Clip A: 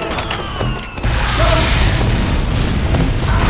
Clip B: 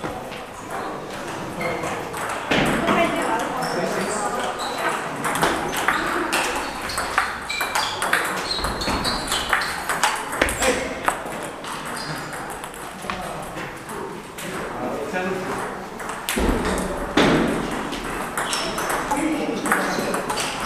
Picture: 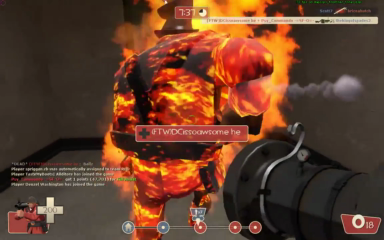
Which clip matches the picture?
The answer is A